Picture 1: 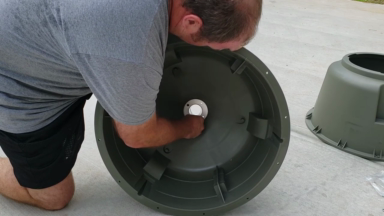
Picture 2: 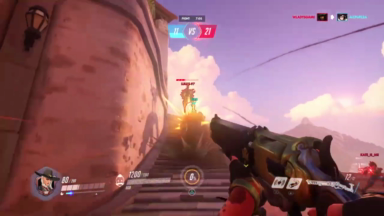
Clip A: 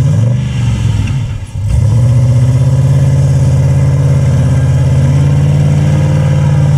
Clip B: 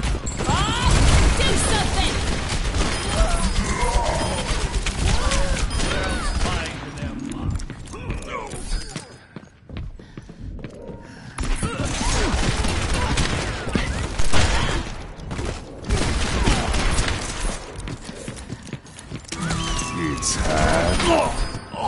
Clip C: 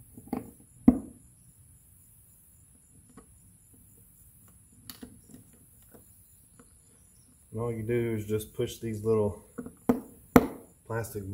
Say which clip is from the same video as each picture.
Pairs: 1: C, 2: B